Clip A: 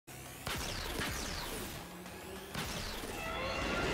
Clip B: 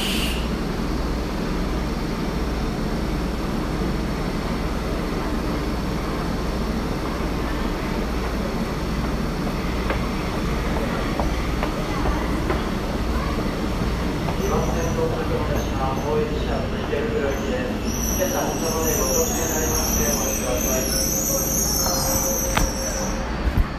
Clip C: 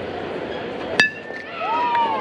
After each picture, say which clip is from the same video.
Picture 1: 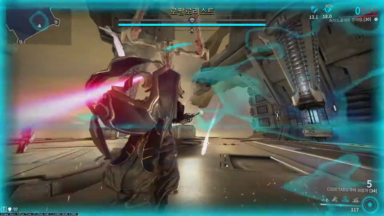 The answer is A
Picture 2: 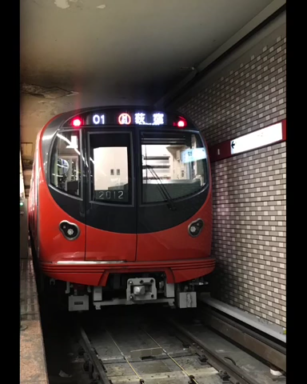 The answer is B